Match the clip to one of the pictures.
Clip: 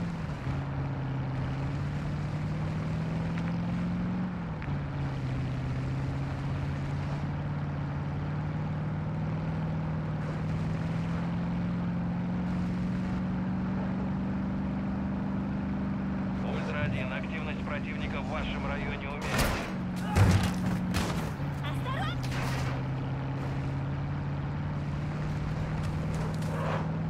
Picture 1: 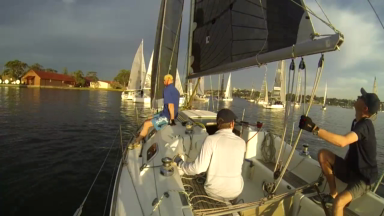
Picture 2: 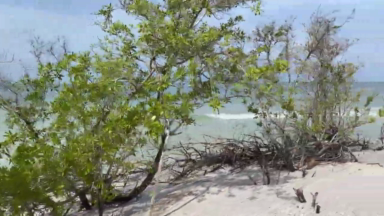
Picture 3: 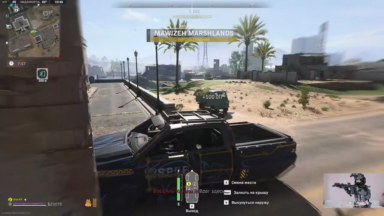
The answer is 3